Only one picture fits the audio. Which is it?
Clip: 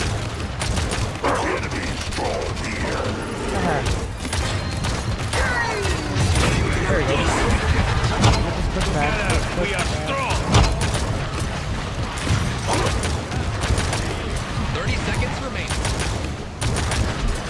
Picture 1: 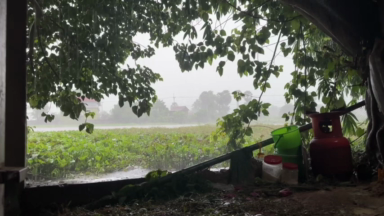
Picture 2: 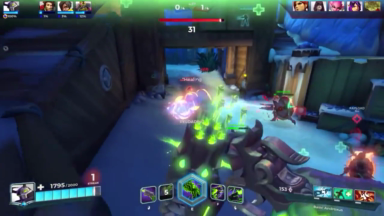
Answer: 2